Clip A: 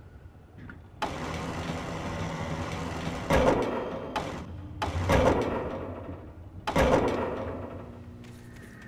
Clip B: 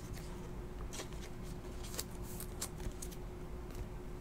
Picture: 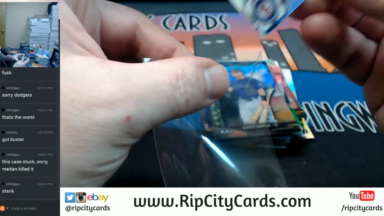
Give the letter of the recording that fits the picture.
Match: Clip B